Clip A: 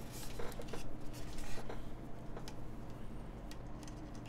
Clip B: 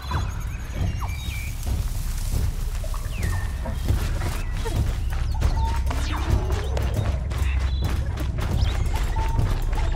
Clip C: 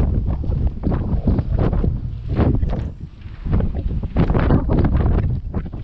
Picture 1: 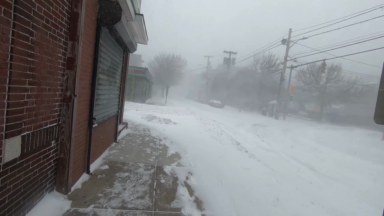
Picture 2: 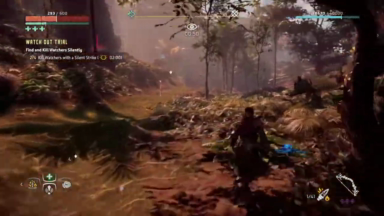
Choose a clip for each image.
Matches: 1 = C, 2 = B